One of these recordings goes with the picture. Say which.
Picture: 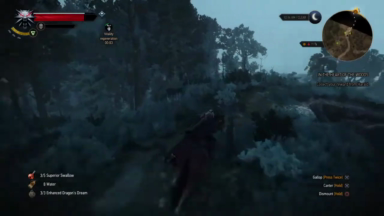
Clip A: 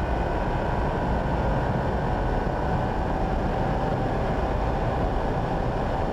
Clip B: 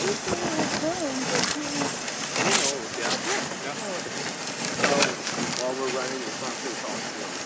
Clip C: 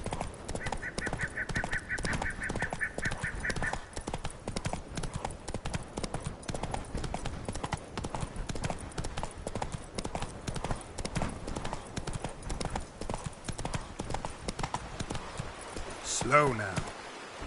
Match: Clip C